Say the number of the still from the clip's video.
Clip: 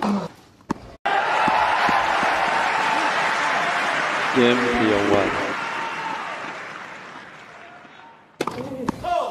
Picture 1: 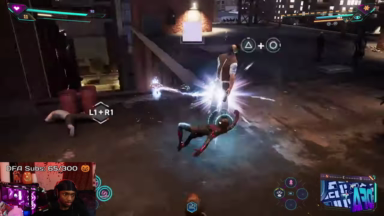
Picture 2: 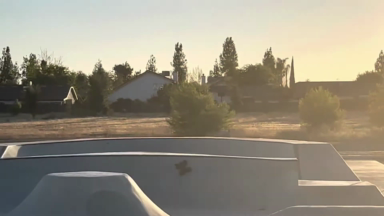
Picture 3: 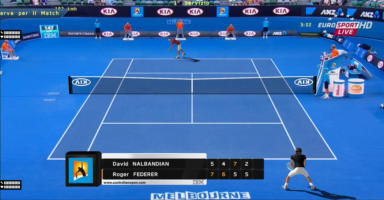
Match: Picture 3